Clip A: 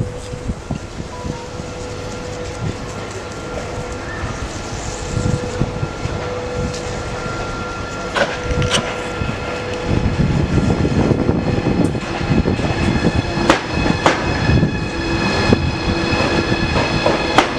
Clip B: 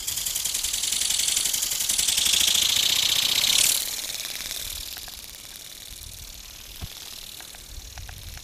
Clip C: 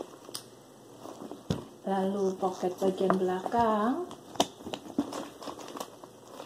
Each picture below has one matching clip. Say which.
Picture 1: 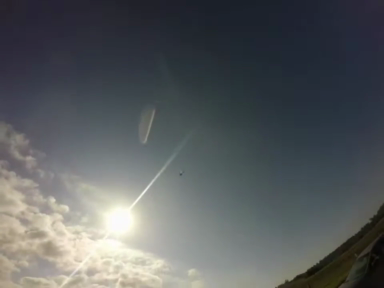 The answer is B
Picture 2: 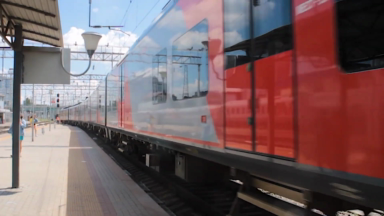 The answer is A